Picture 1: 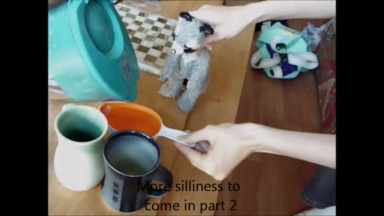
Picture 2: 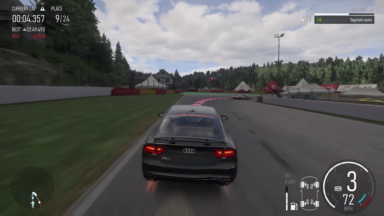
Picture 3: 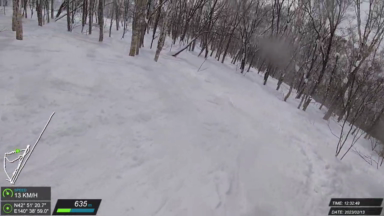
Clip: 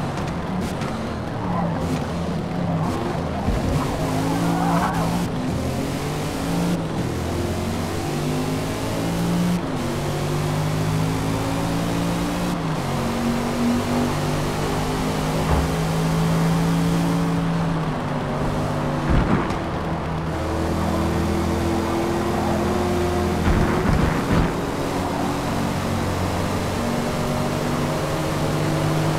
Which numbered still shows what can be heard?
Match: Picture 2